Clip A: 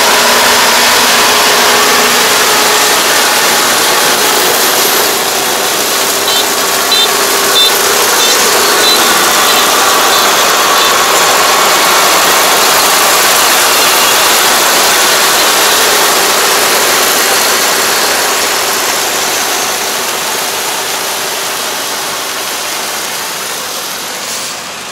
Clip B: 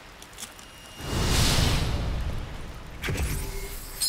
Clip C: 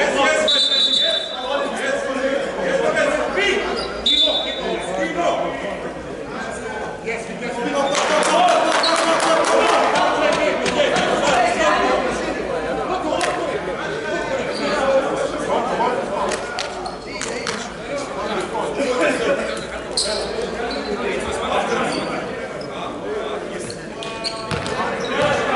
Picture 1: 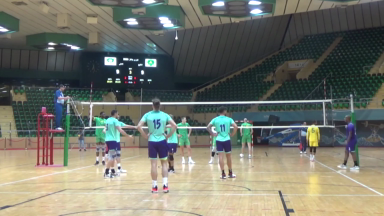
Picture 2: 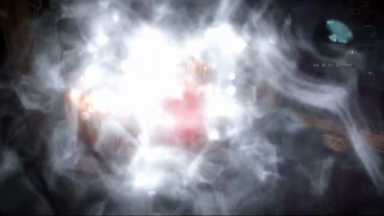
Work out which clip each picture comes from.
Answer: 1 C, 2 B